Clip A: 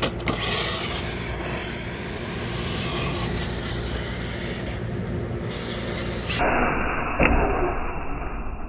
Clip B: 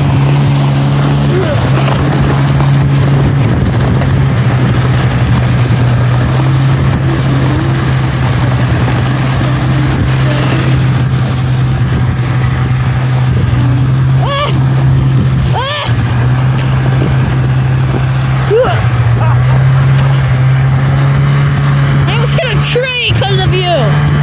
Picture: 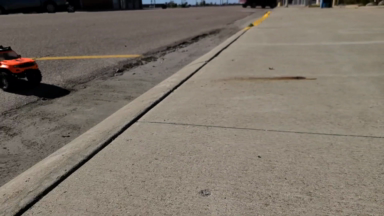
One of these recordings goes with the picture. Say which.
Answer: A